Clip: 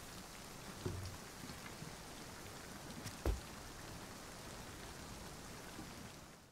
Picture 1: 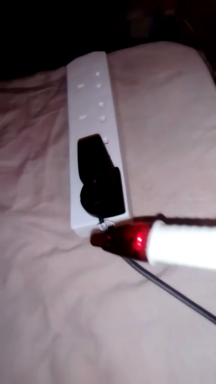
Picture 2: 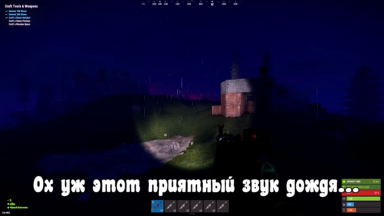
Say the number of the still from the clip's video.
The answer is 2